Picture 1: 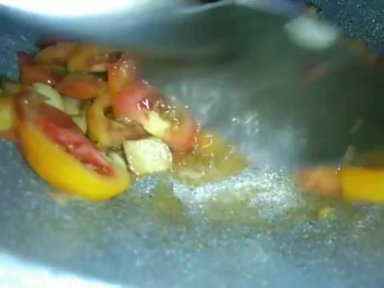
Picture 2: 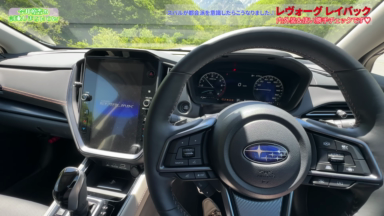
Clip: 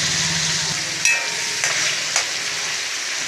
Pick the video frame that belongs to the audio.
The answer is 1